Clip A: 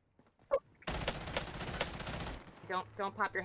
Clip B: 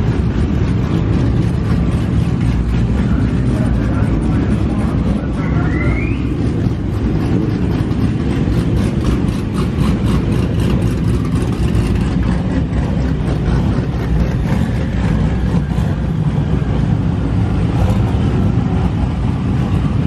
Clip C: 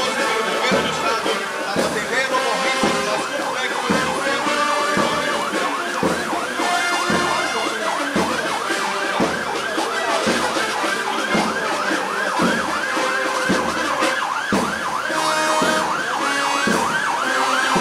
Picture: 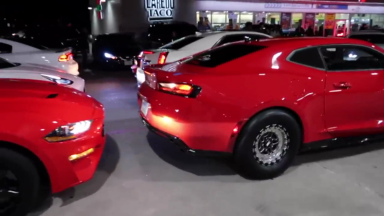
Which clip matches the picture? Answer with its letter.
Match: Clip B